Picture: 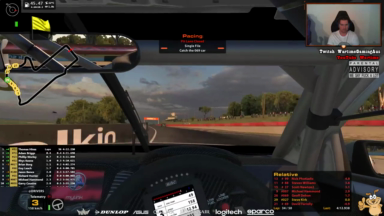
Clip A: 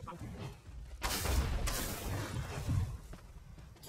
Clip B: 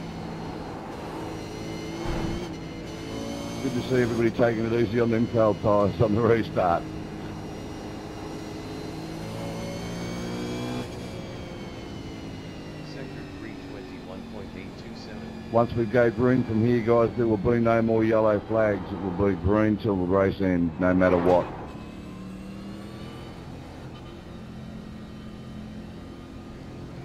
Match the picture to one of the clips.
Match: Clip B